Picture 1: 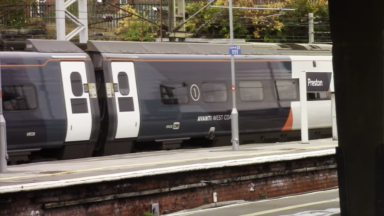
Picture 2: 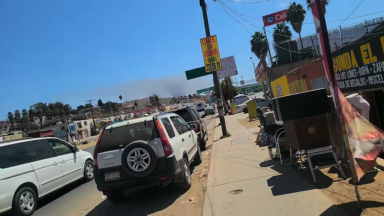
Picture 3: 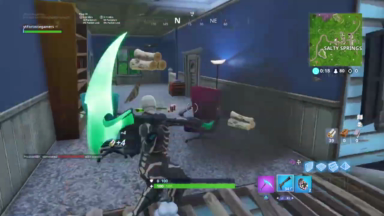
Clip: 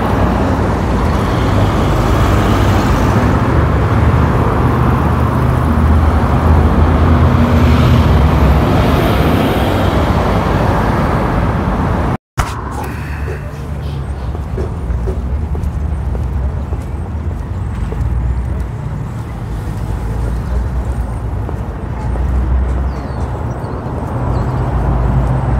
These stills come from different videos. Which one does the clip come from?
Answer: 2